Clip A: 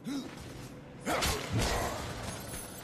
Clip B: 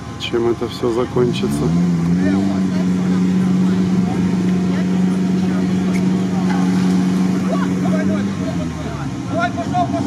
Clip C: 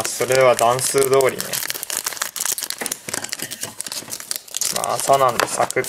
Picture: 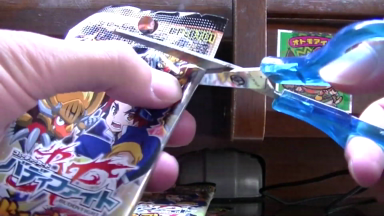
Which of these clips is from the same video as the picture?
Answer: C